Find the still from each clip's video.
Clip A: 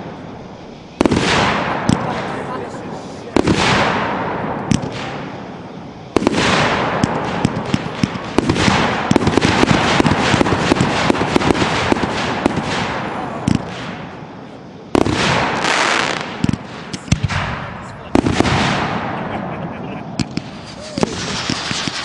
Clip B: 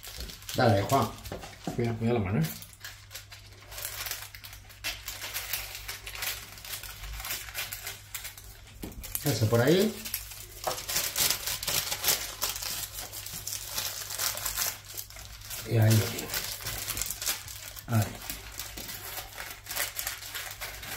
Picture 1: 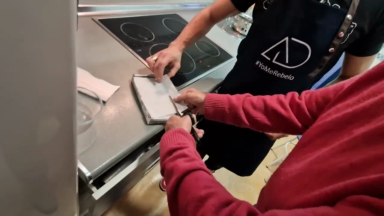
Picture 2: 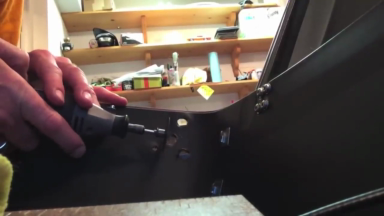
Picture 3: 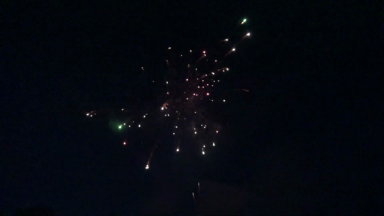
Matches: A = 3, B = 1